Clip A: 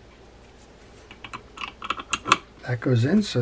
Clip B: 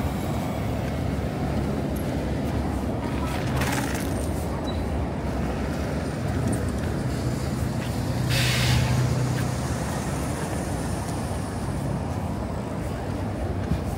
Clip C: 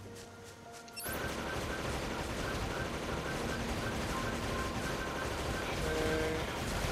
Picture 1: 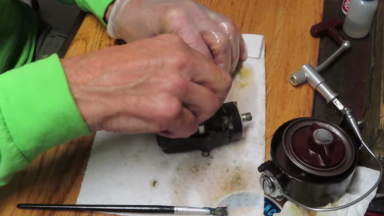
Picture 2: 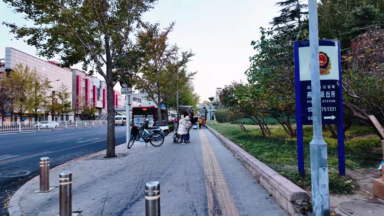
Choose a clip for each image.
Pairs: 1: A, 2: B